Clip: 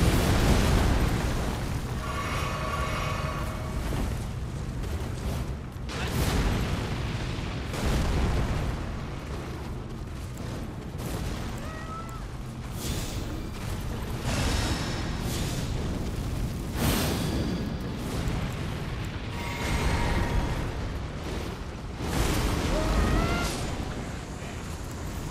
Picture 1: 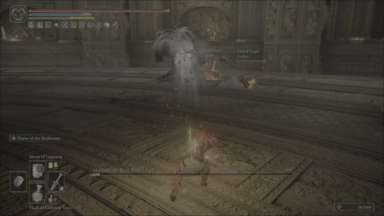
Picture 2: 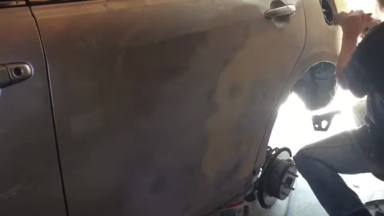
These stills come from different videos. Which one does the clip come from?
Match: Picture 1